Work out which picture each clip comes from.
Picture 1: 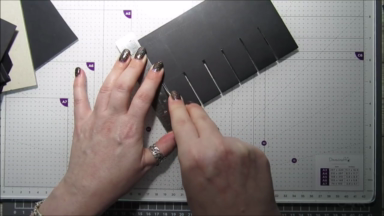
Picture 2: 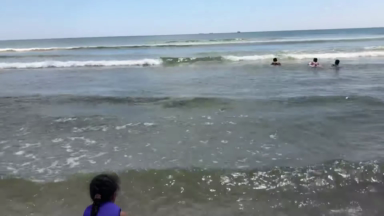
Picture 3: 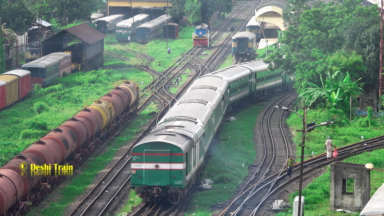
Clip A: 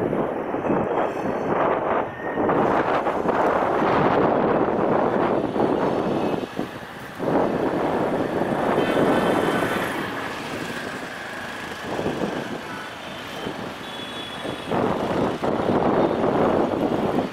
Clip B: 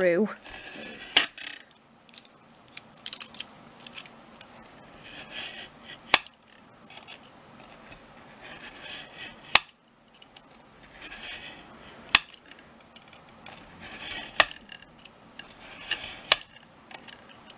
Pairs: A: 3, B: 1